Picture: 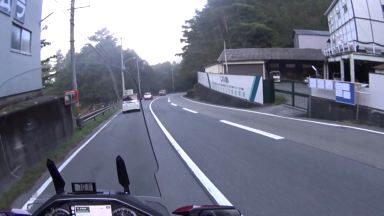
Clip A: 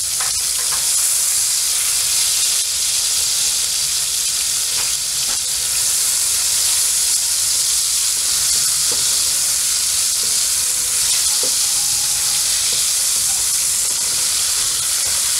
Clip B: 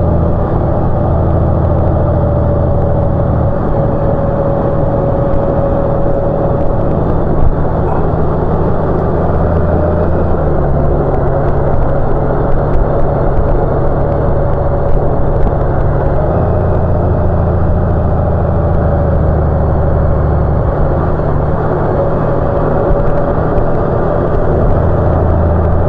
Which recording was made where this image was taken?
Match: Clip B